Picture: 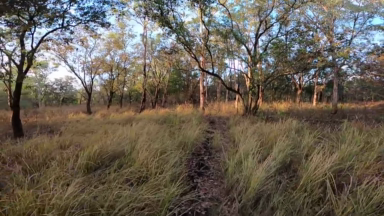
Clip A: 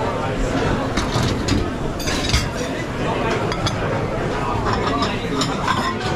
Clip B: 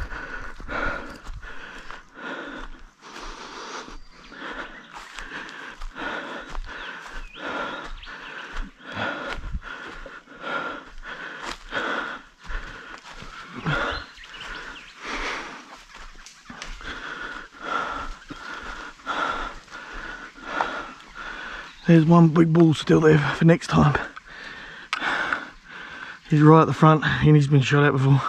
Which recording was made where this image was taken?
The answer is B